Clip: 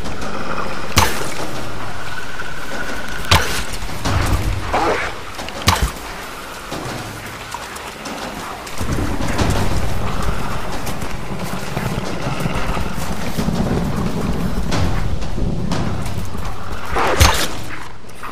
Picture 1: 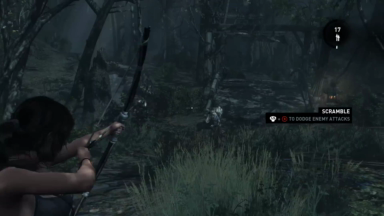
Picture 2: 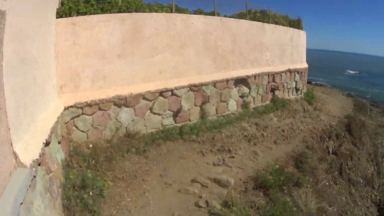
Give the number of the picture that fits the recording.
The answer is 1